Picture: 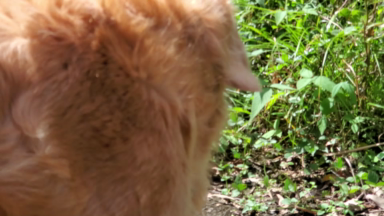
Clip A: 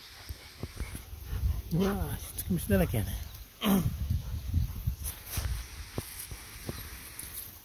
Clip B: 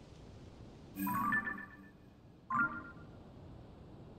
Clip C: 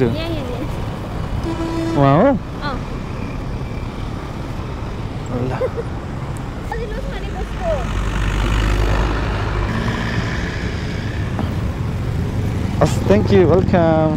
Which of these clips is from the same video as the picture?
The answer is A